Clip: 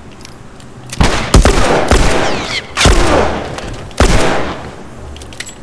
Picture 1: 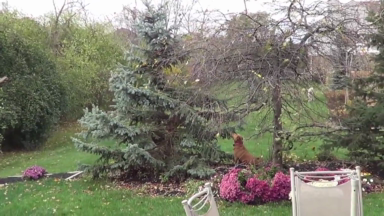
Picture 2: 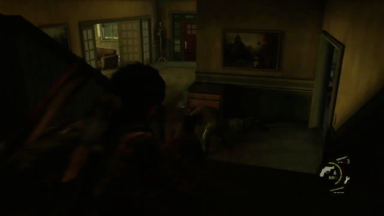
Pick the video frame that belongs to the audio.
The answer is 2